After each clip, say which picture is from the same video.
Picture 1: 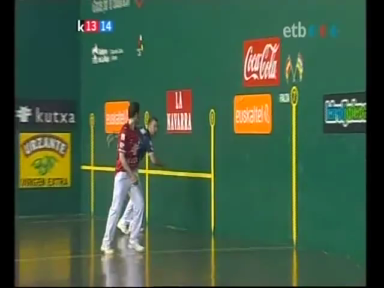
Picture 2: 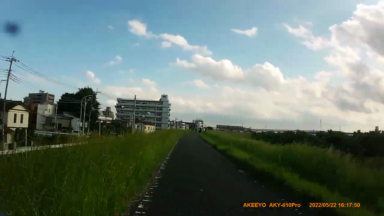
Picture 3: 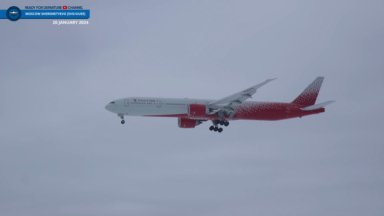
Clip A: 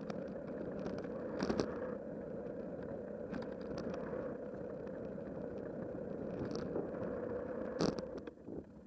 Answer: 2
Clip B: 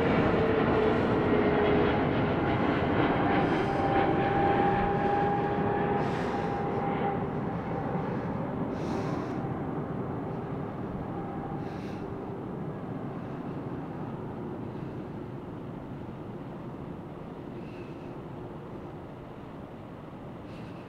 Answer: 3